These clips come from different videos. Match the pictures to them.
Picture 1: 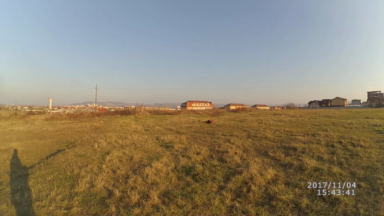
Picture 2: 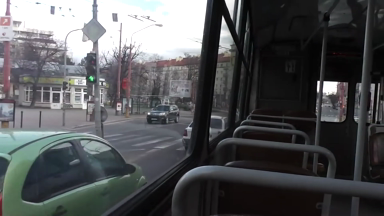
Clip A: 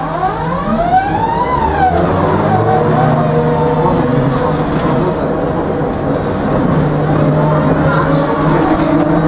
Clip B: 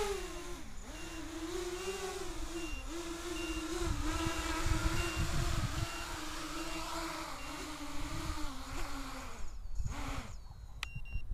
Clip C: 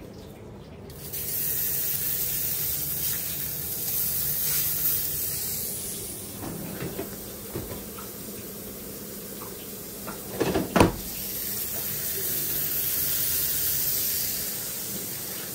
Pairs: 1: B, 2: A